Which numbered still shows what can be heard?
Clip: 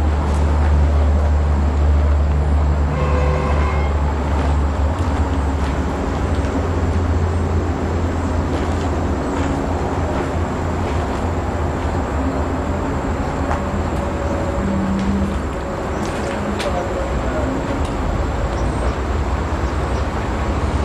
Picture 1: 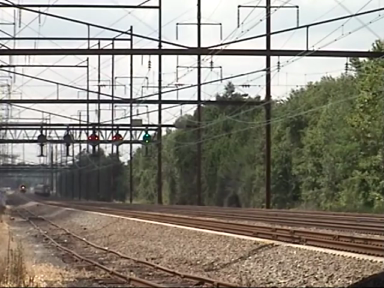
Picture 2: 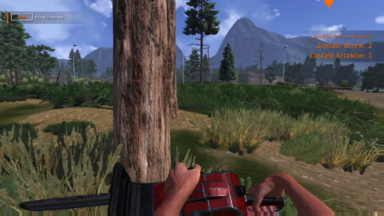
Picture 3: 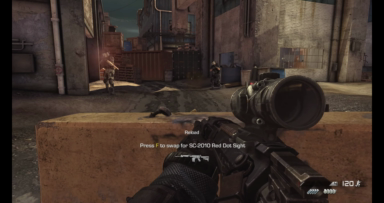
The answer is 1